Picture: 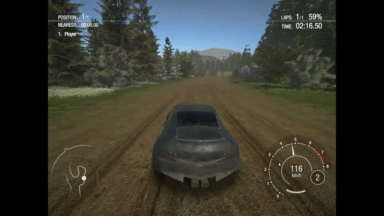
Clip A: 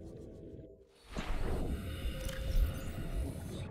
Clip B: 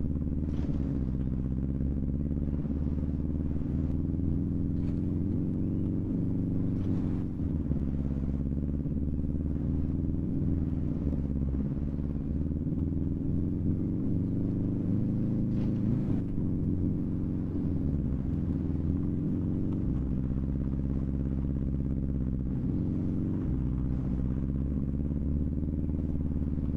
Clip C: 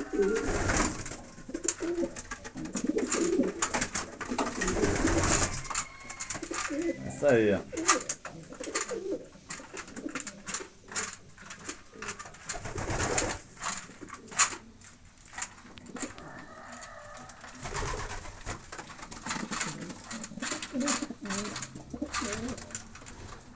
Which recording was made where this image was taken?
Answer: B